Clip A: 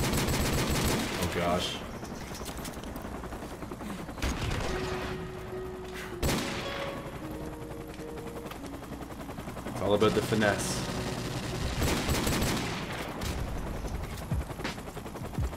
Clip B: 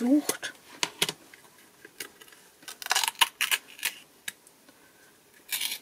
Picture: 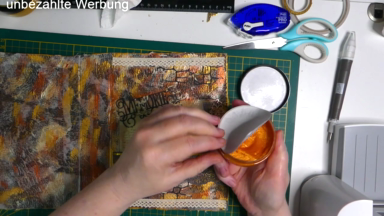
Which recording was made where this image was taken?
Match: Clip B